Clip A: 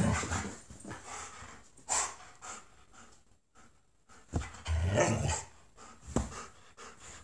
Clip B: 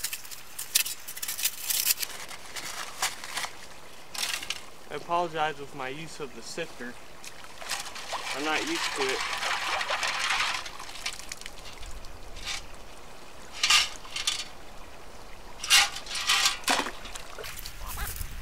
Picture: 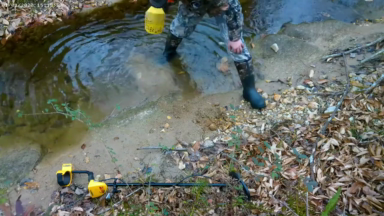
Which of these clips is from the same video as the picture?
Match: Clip B